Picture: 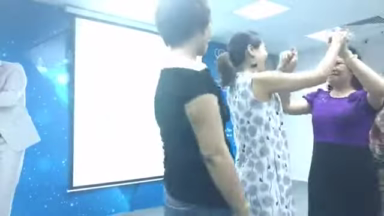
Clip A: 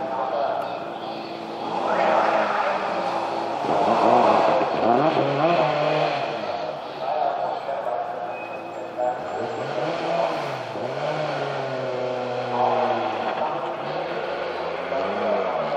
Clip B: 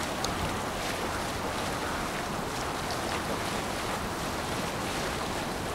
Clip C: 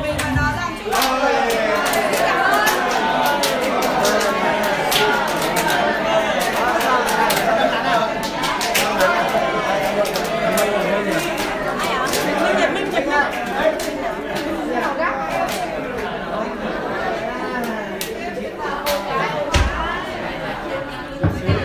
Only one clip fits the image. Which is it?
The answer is C